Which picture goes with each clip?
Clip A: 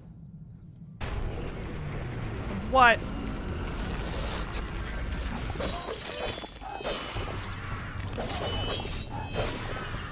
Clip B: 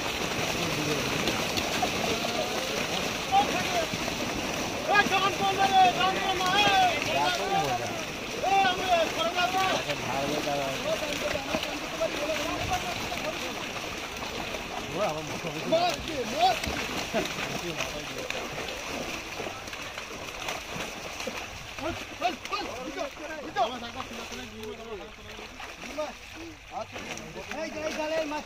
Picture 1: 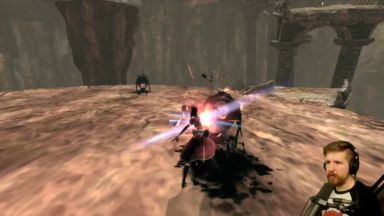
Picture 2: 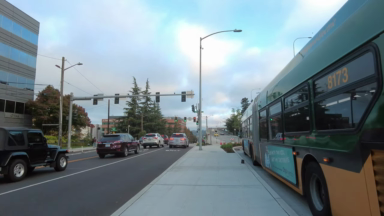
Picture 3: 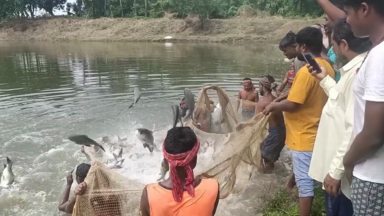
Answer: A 1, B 3